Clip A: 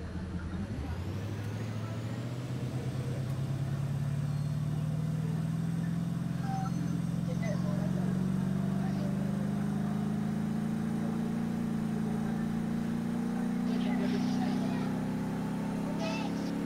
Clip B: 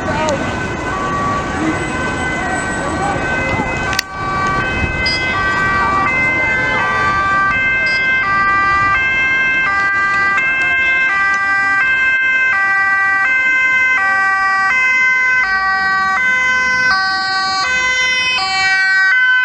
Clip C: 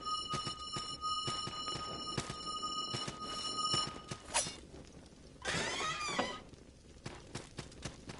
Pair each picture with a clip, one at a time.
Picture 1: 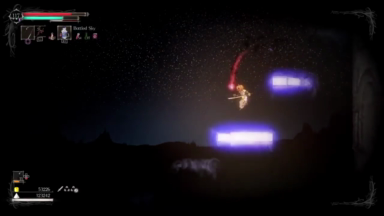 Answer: C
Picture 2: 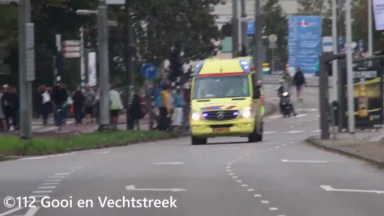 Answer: B